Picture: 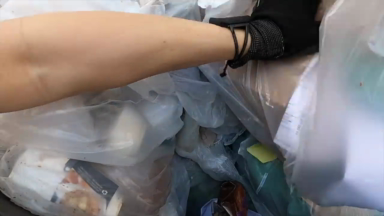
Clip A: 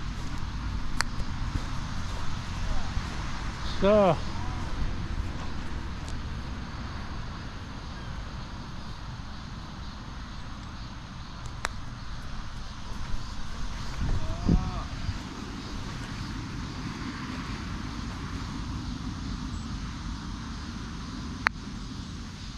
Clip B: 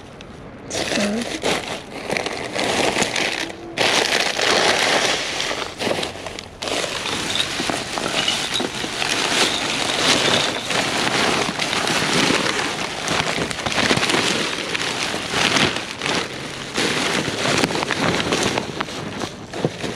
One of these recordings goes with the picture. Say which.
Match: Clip B